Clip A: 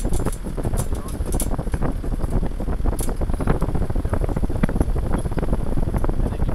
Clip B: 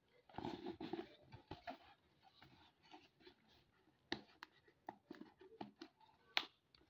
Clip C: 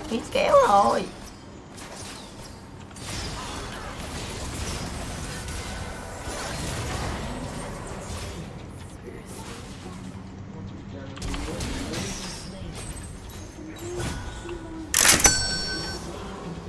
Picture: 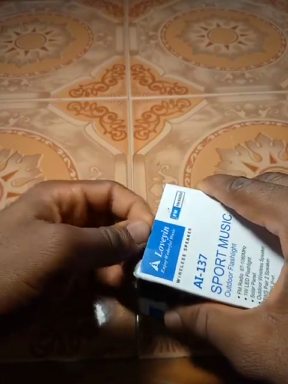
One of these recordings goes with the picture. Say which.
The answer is B